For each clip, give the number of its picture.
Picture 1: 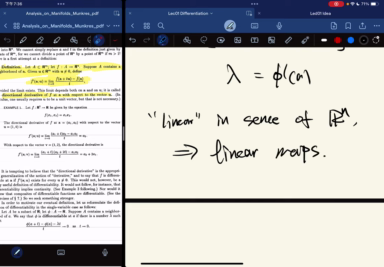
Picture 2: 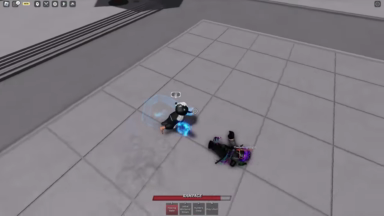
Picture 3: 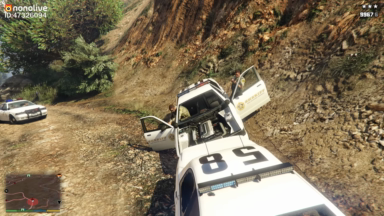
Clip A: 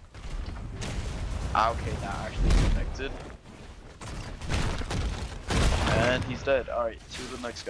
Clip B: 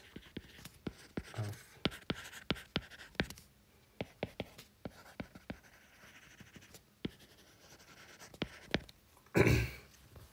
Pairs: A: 2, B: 1